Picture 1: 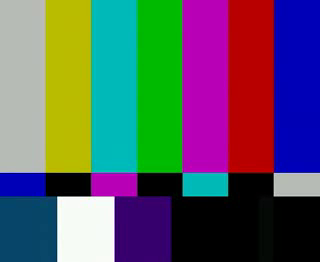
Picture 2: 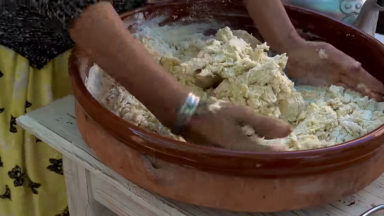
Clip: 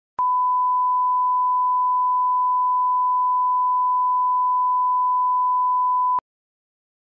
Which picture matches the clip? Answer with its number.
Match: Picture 1